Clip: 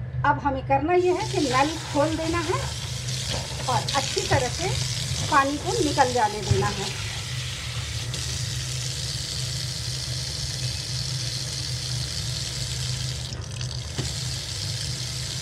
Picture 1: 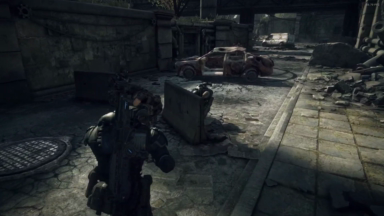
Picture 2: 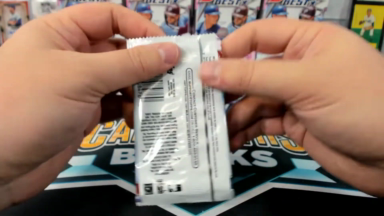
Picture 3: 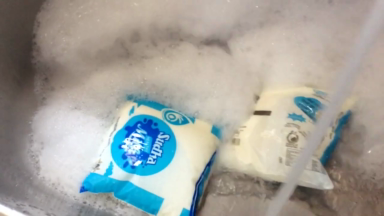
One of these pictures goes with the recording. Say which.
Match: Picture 3